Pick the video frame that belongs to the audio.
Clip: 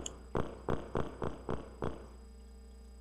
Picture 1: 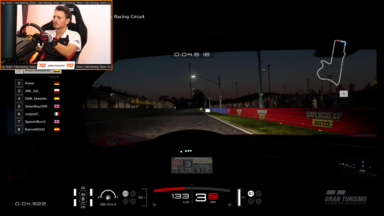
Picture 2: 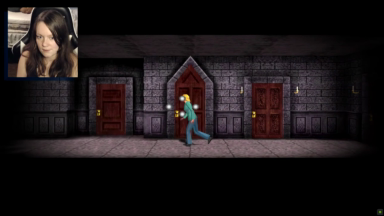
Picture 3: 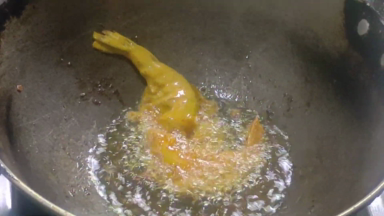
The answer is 2